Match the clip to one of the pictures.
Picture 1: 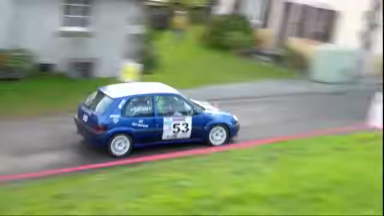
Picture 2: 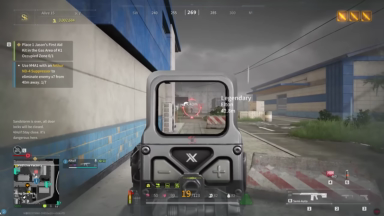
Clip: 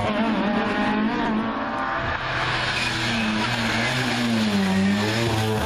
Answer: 1